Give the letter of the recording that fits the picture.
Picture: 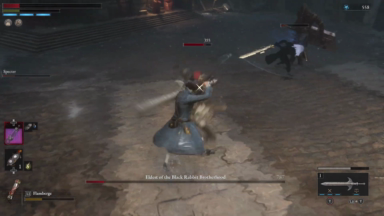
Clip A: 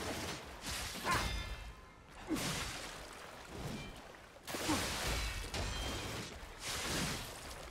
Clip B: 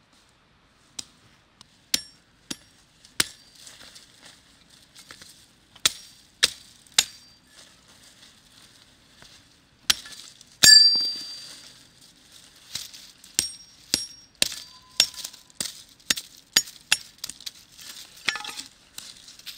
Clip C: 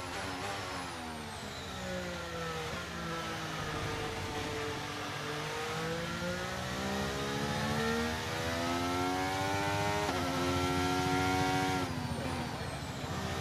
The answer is A